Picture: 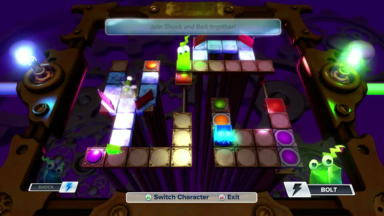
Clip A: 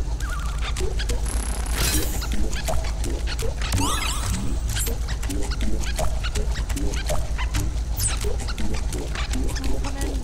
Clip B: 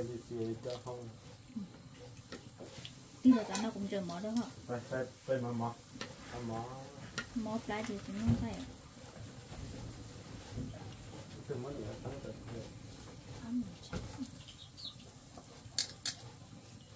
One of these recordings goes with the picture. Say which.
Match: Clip A